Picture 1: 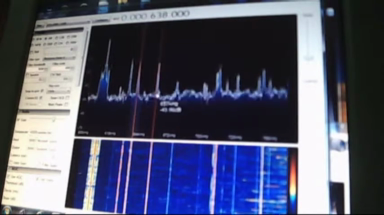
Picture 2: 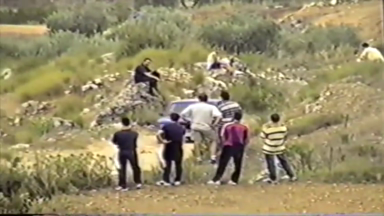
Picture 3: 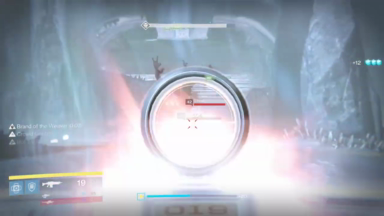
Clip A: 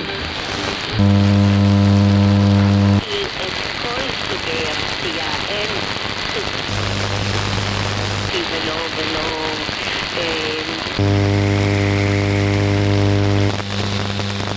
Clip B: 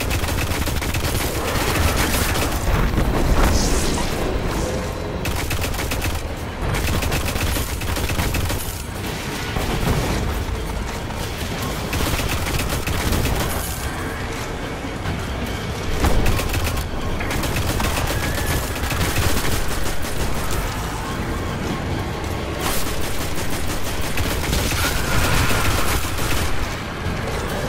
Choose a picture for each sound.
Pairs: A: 1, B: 3